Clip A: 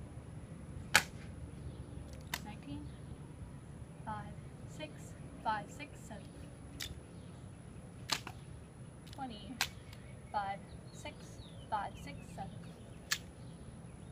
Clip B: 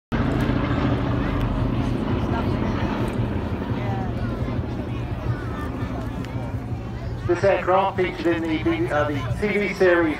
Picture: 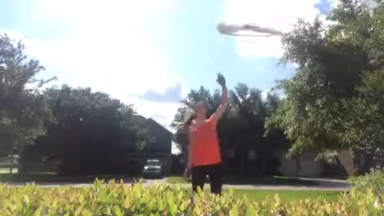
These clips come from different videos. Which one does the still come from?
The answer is A